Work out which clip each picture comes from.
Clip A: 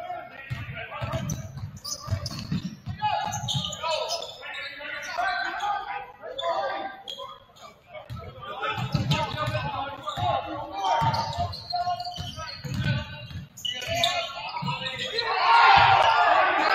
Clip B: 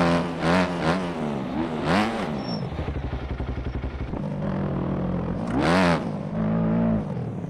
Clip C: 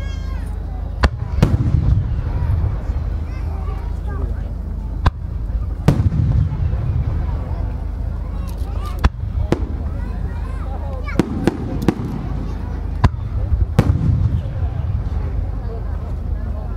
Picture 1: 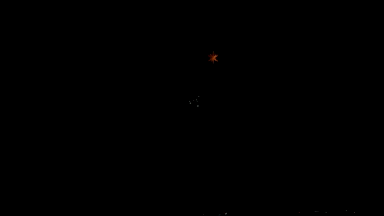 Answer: C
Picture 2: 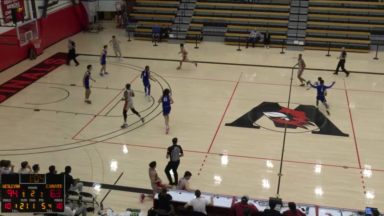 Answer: A